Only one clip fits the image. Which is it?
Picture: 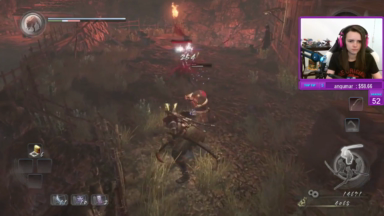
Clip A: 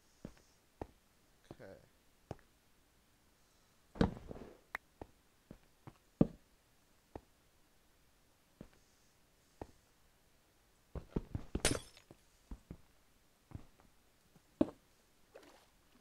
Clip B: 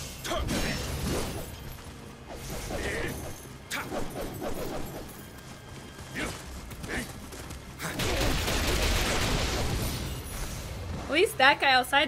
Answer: B